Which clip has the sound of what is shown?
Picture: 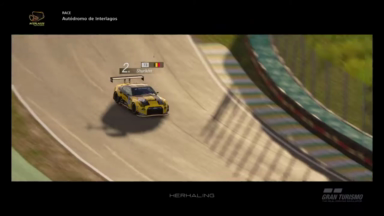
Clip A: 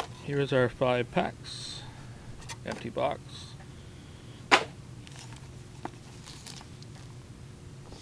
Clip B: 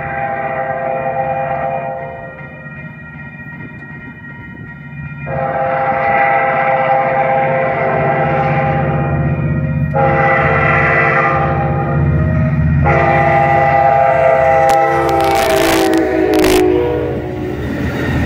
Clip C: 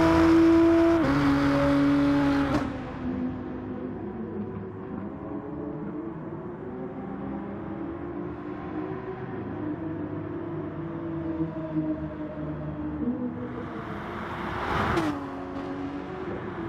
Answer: C